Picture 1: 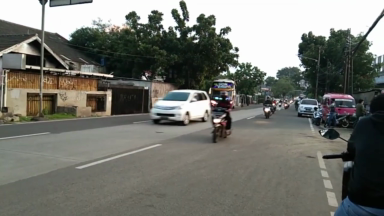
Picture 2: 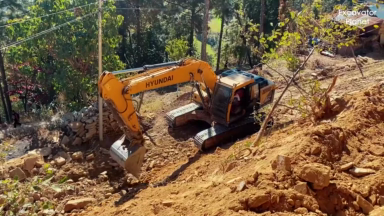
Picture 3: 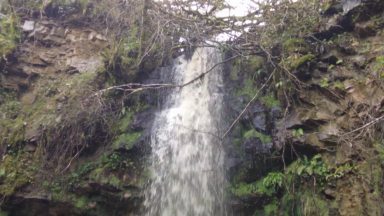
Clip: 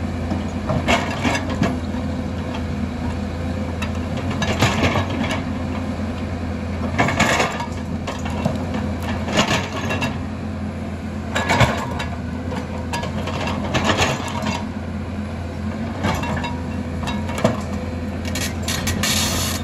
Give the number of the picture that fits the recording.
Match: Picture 2